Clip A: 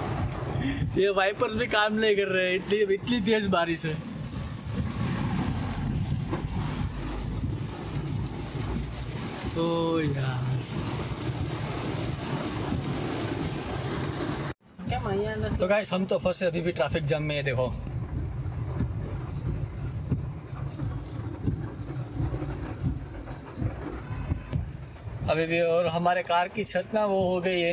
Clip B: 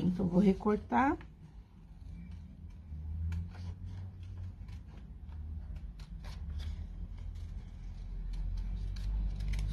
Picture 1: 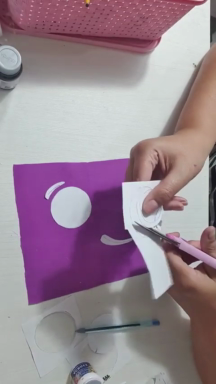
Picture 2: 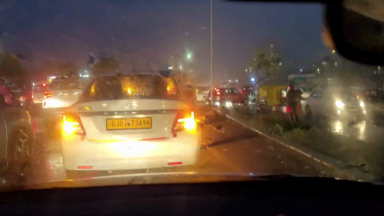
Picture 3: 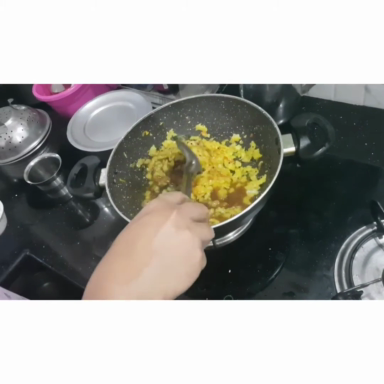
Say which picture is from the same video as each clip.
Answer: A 2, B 1